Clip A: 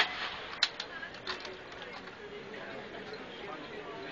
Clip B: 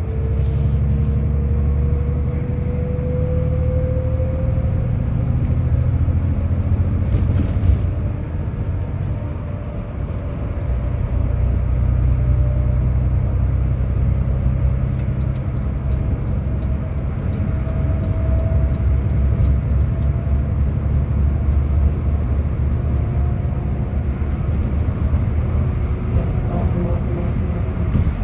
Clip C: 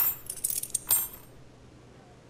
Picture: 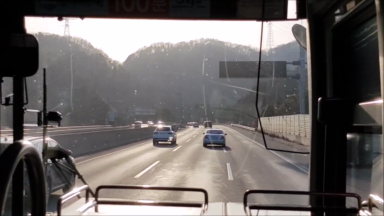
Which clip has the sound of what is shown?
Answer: B